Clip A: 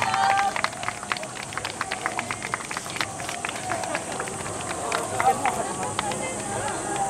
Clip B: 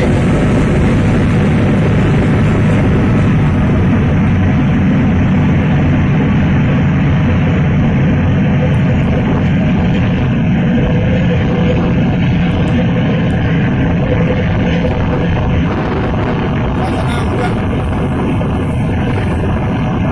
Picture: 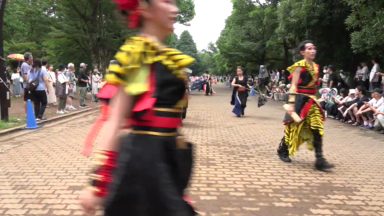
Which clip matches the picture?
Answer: A